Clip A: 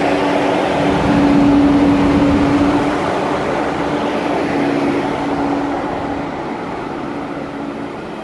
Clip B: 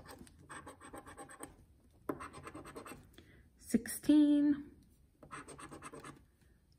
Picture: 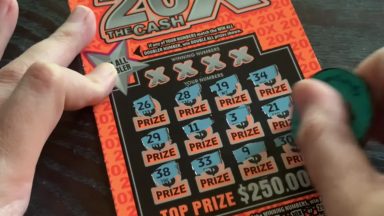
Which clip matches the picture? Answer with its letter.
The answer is B